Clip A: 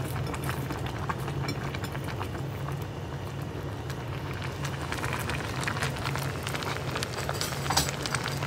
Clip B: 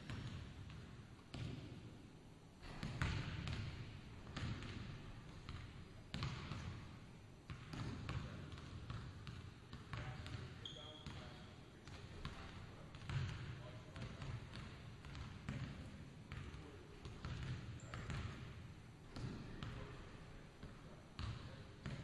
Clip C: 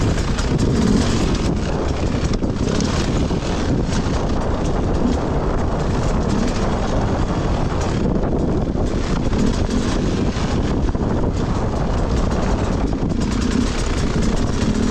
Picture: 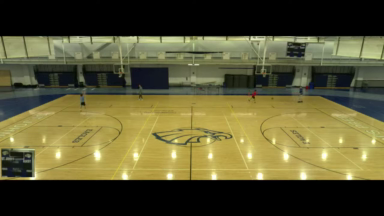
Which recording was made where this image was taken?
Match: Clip B